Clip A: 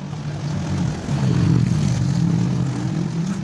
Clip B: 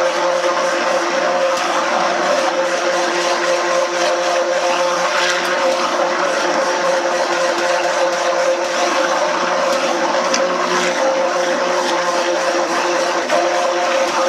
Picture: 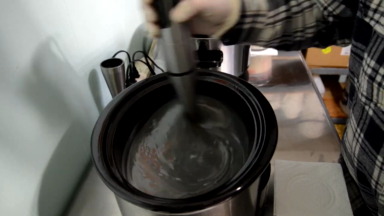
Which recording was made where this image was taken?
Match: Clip B